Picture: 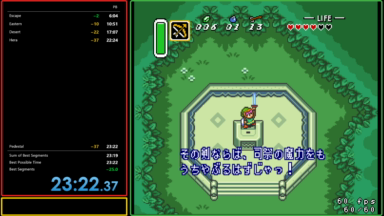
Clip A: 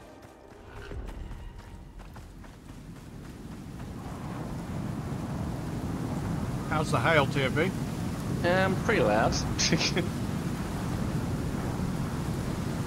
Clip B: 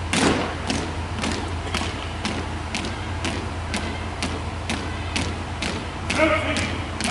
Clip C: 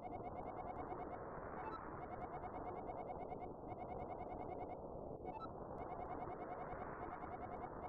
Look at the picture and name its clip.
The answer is C